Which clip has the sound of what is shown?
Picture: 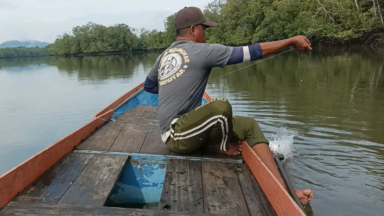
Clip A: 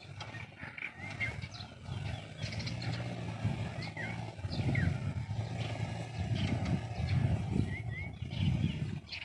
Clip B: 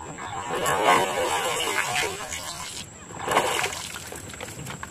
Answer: B